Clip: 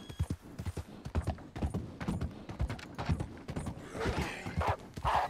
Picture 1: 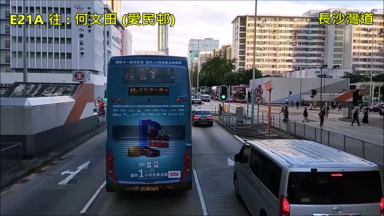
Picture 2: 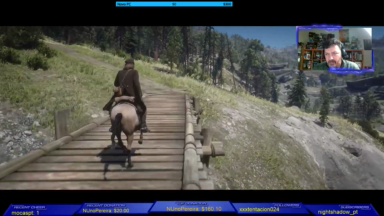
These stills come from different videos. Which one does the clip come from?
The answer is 2